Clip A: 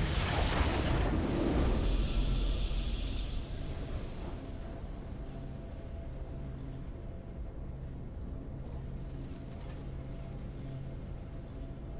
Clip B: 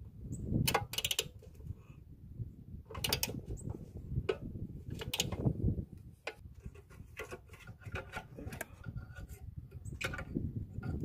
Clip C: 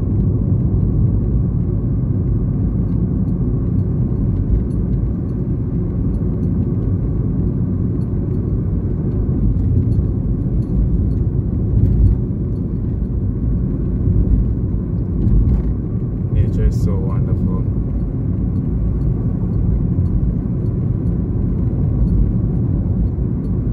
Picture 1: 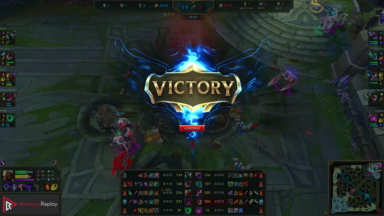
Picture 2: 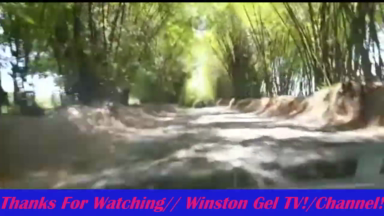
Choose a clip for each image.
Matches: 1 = A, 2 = C